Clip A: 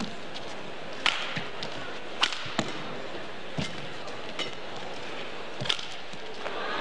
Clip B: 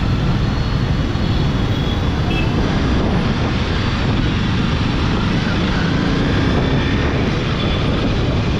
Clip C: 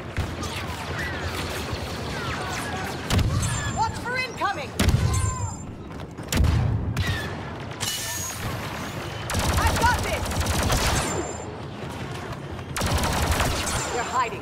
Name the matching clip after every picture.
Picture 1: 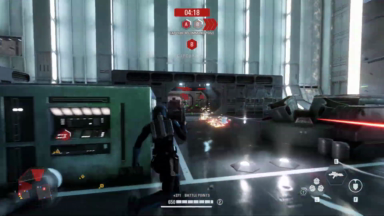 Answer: C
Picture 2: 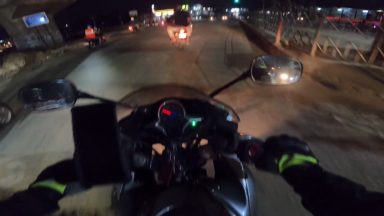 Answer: B